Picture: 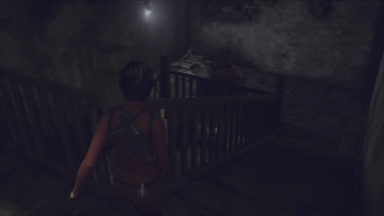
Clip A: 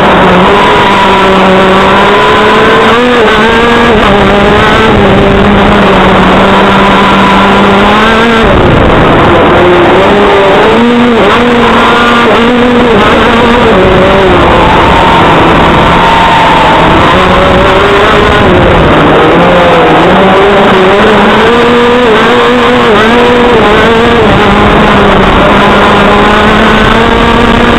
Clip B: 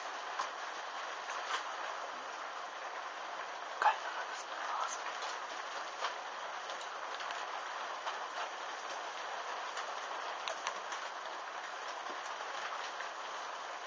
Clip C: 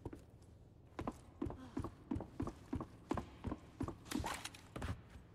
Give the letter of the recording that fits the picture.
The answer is C